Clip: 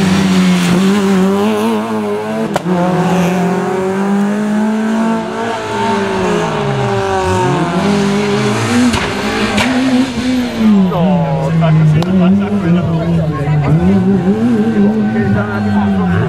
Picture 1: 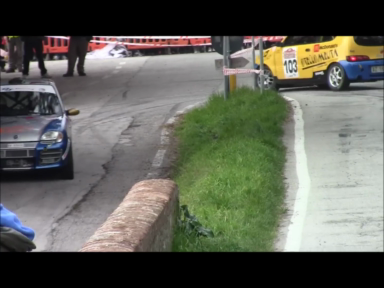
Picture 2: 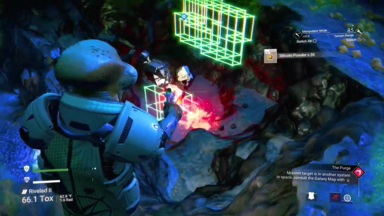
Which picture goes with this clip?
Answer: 1